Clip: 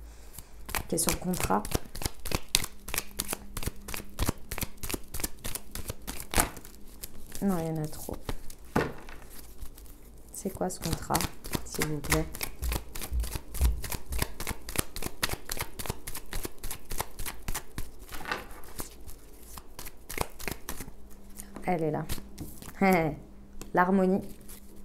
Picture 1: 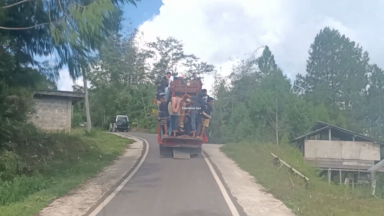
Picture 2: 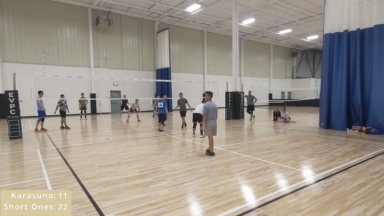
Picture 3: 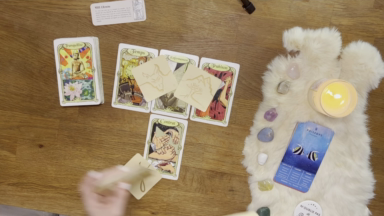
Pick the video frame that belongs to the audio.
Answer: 3